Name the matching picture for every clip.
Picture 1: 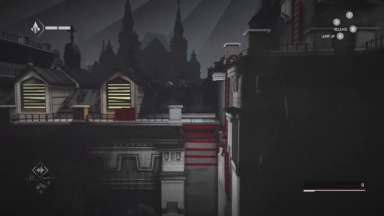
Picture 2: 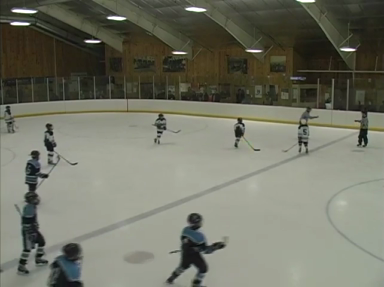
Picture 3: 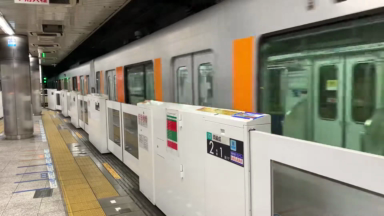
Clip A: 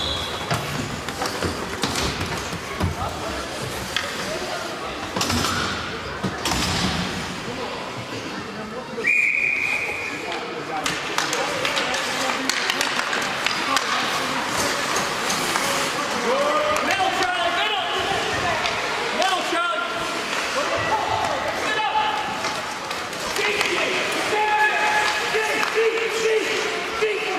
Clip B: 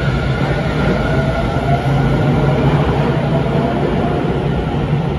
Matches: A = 2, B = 3